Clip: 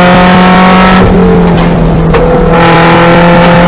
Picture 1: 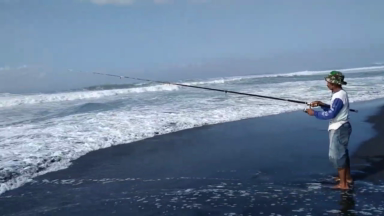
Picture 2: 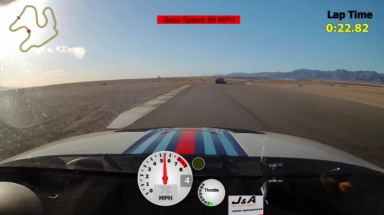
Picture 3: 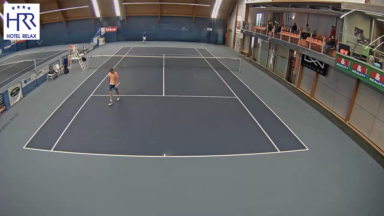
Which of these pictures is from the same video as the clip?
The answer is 2